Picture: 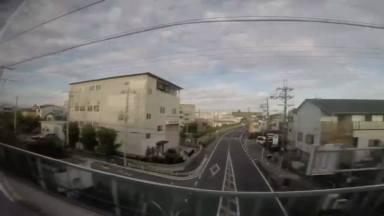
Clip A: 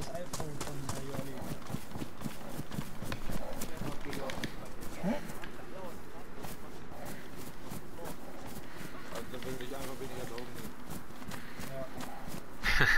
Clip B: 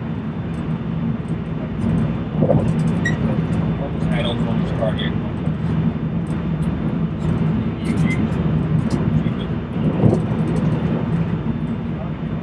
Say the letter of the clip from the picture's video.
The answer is B